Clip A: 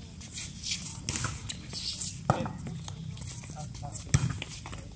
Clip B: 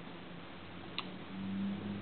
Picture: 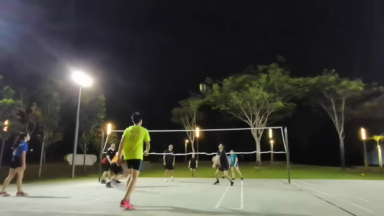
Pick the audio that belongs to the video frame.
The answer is A